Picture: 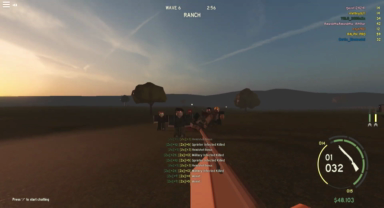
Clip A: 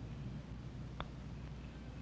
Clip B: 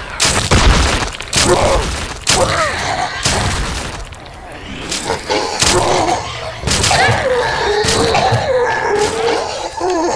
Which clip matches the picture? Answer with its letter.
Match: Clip B